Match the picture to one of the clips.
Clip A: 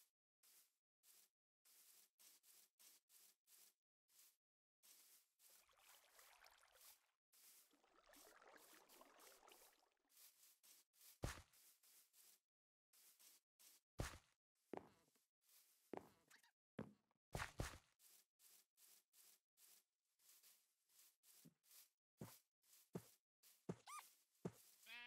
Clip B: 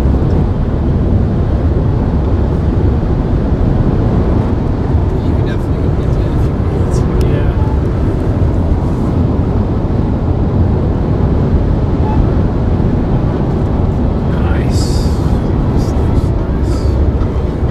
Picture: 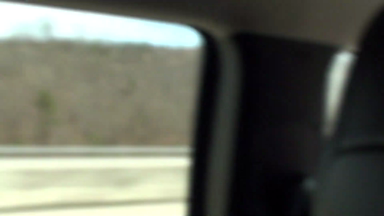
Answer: B